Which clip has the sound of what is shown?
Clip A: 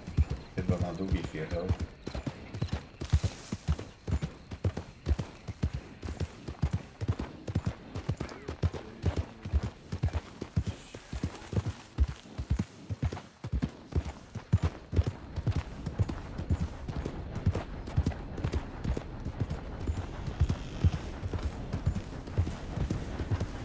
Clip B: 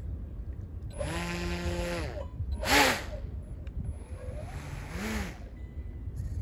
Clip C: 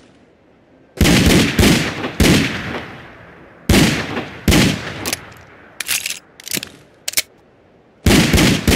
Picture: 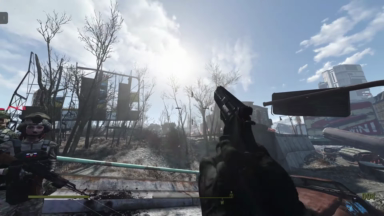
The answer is C